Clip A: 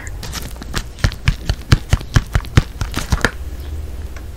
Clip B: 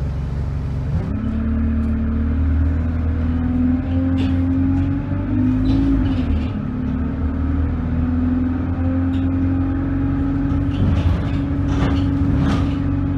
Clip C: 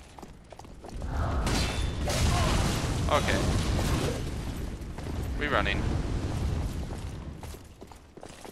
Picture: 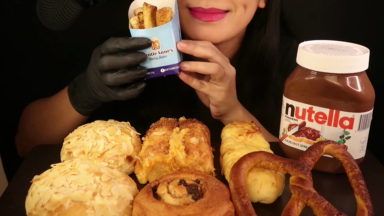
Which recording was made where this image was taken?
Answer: A